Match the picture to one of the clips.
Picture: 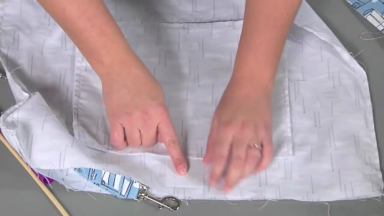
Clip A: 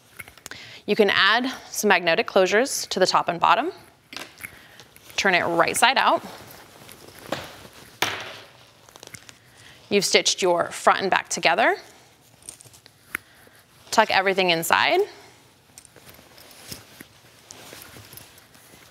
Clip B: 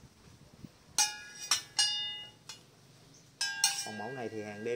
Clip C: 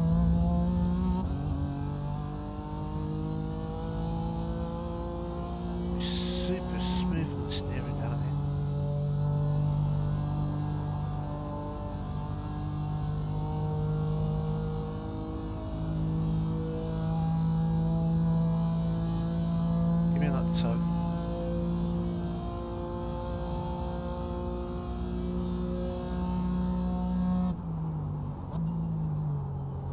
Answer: A